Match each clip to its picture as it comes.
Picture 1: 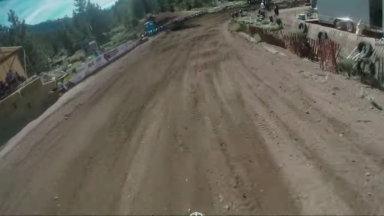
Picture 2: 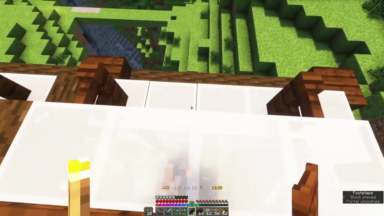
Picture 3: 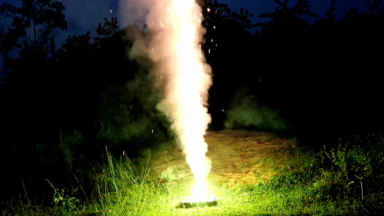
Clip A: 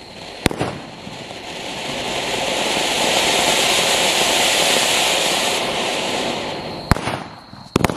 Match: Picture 3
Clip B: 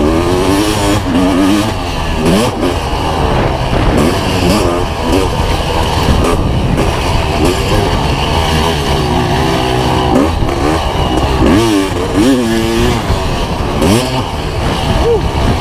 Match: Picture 1